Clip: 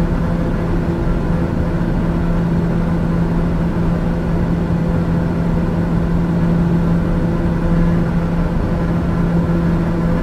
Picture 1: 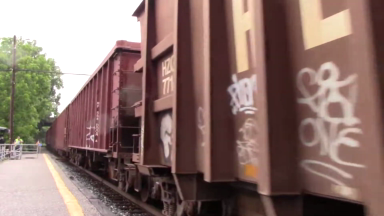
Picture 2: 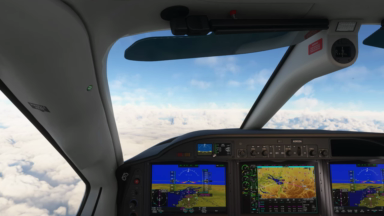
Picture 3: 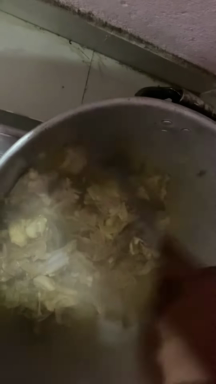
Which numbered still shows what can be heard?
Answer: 2